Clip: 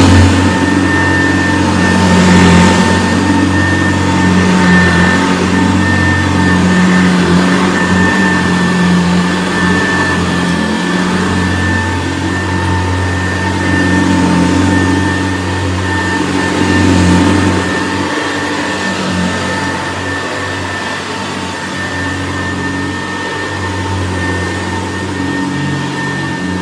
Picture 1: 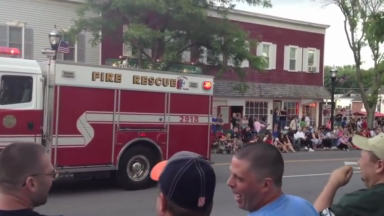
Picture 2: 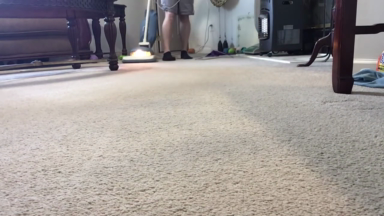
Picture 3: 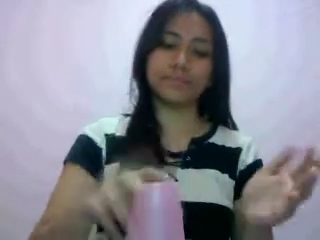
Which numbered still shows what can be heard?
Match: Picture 2